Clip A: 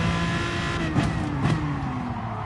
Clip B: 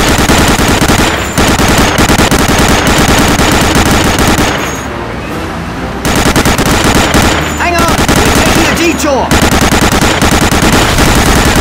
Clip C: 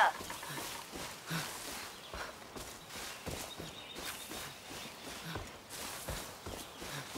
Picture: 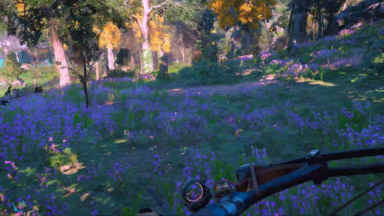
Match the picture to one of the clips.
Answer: C